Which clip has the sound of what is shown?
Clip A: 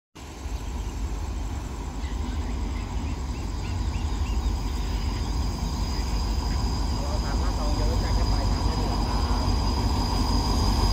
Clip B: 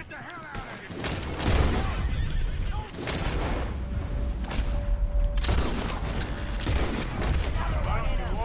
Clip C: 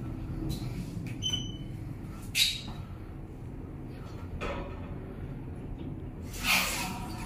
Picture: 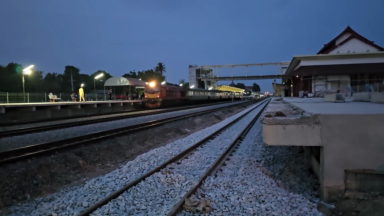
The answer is A